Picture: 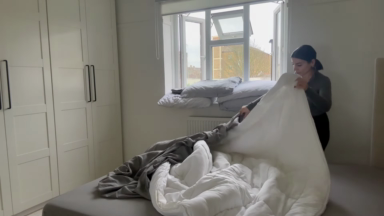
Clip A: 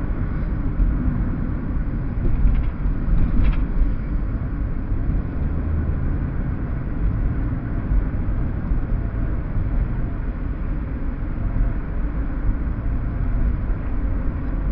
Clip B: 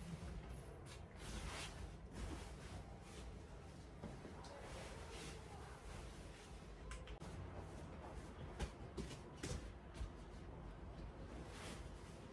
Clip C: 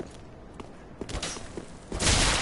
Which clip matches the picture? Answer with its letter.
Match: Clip B